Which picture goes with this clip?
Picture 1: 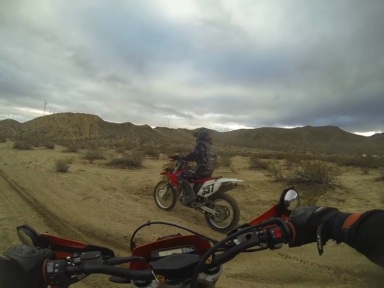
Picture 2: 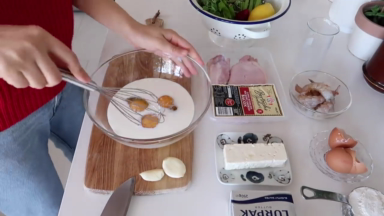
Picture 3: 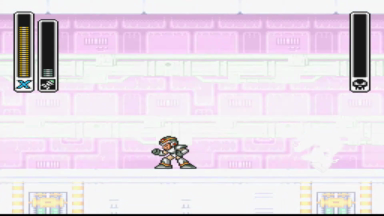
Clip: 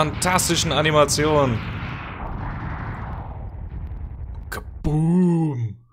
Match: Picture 3